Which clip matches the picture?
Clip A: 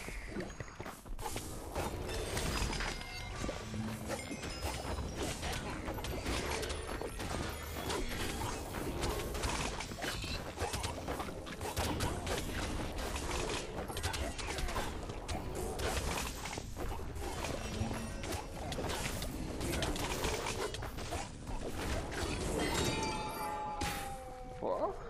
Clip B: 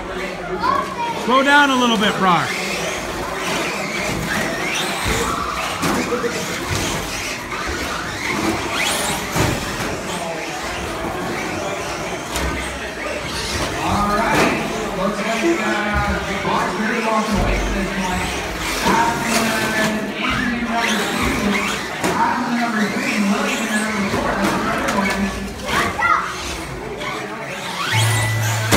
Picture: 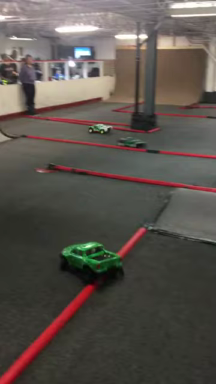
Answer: B